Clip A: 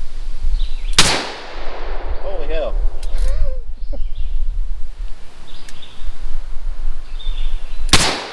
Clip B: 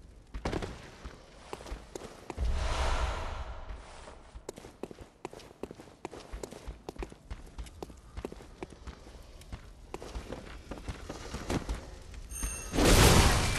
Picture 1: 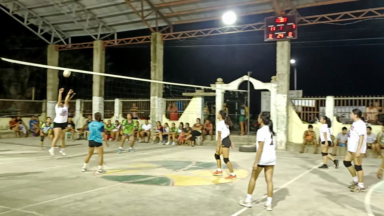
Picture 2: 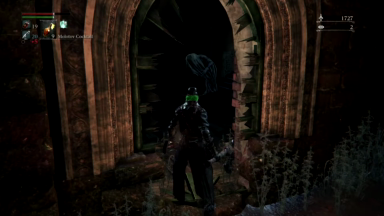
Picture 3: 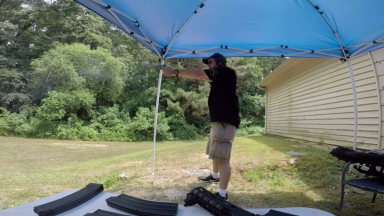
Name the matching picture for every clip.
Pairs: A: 3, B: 2